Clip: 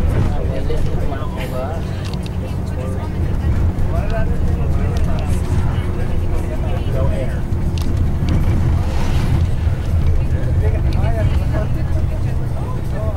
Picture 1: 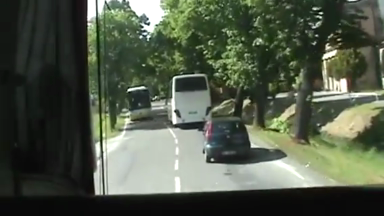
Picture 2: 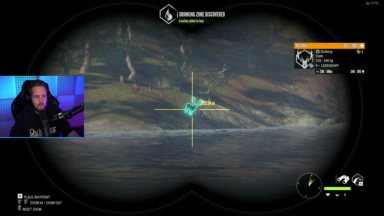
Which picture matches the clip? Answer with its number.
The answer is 1